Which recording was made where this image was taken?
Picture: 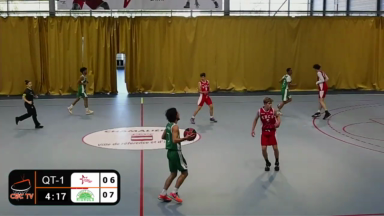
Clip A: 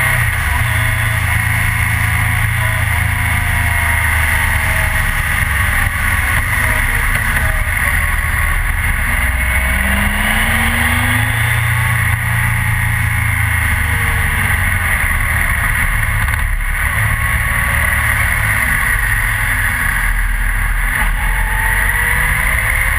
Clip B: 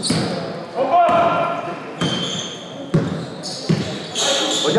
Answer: B